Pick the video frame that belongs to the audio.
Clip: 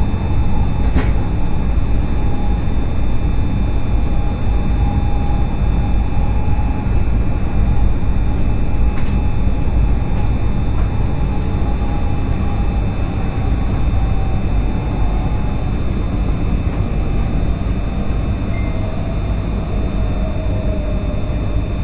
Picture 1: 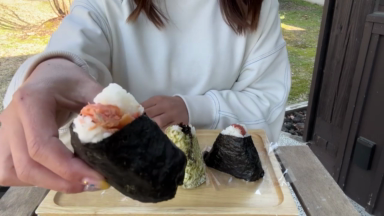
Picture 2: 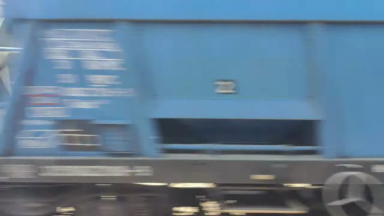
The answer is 2